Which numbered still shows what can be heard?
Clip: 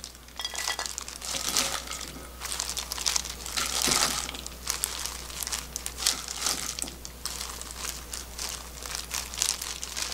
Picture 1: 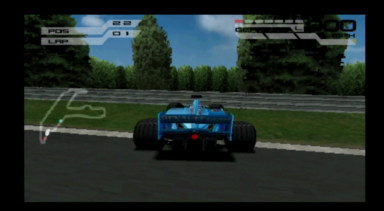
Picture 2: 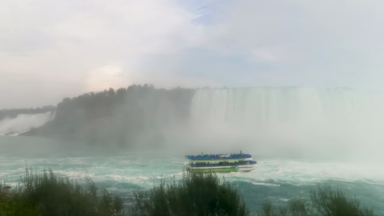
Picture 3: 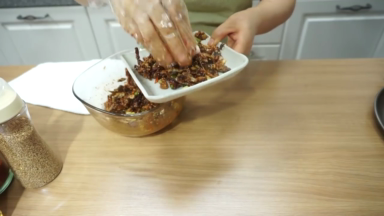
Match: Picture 3